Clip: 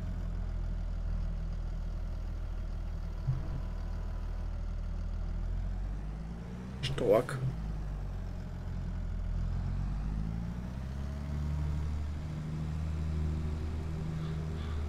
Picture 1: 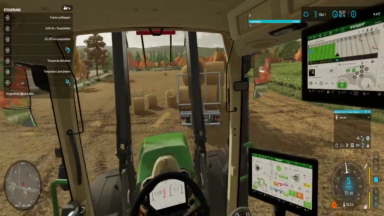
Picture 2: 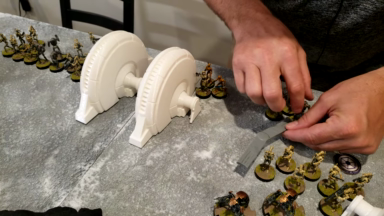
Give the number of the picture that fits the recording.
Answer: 1